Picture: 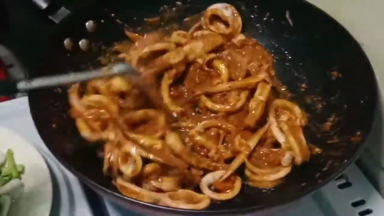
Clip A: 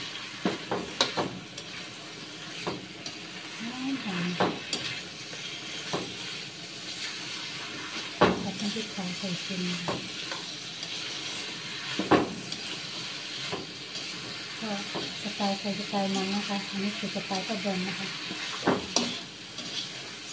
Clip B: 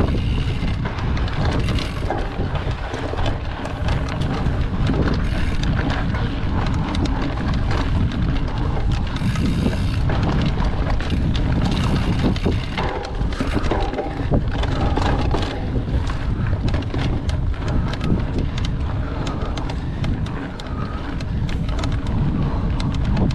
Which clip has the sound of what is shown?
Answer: A